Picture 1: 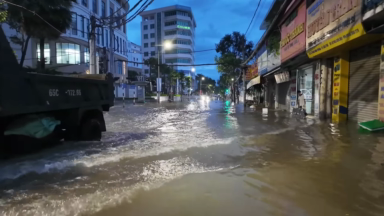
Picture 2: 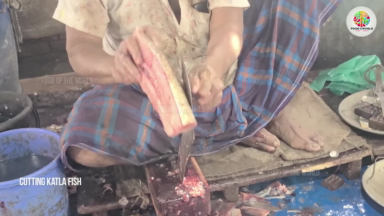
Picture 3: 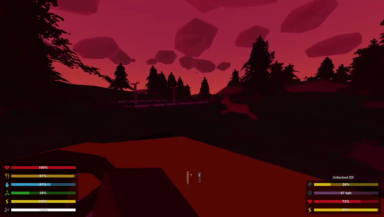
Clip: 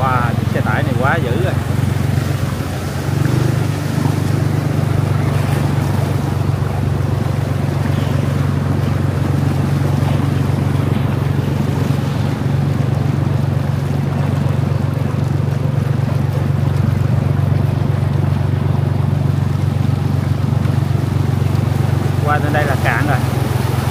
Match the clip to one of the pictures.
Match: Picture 1